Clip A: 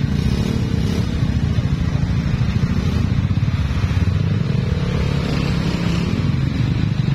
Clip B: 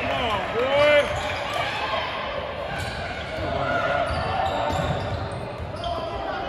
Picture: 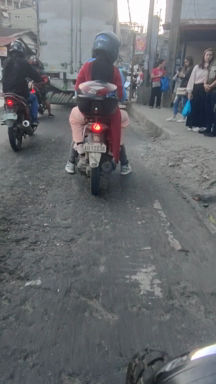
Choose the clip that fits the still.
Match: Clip A